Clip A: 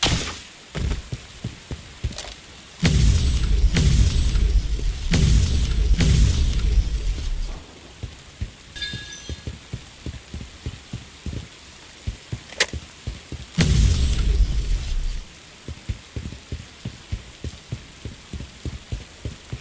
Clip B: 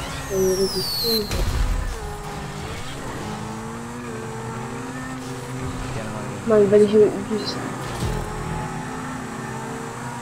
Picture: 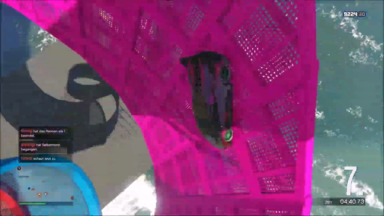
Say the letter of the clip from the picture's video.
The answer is B